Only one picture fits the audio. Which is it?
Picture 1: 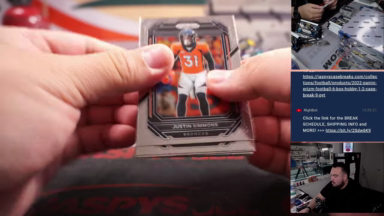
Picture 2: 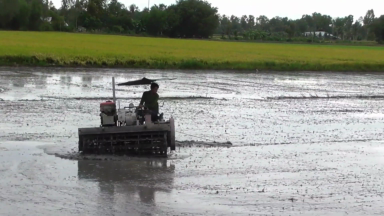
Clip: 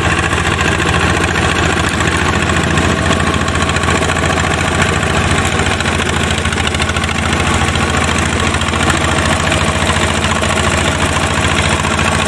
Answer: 2